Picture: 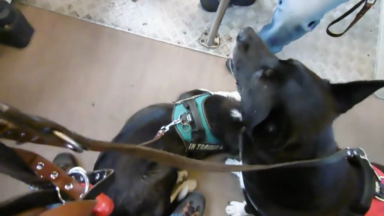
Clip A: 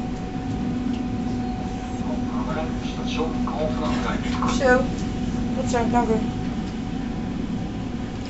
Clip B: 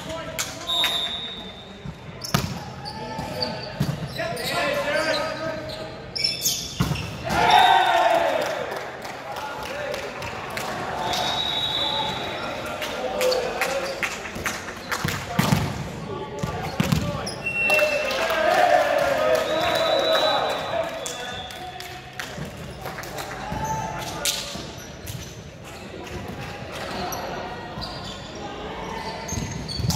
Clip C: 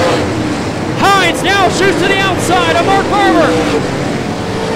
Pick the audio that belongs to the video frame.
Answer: A